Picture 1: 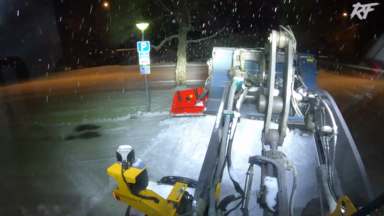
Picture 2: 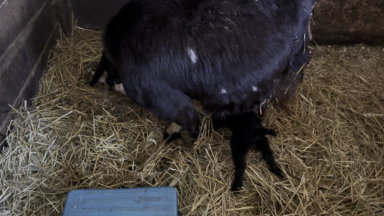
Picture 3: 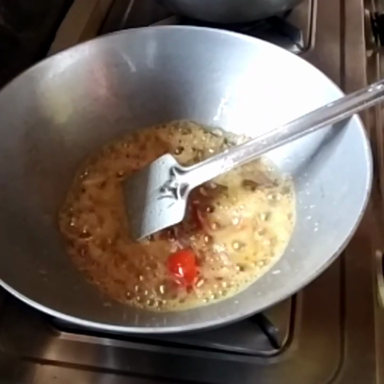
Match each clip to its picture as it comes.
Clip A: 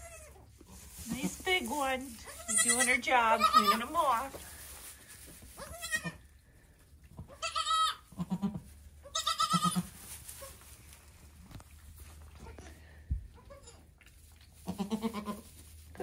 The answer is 2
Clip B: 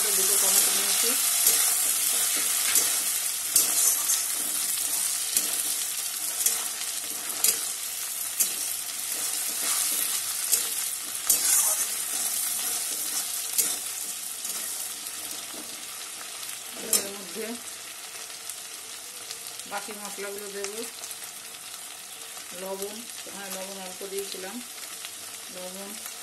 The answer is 3